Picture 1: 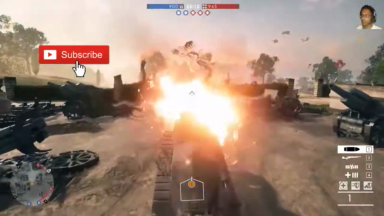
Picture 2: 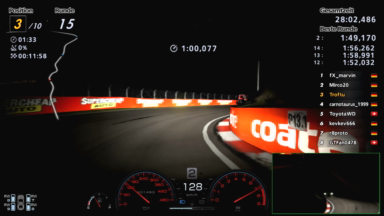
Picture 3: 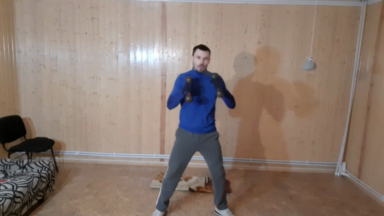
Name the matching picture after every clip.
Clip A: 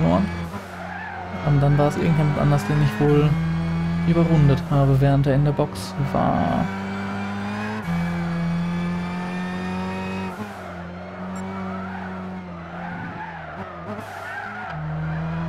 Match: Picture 2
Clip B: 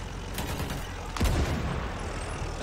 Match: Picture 1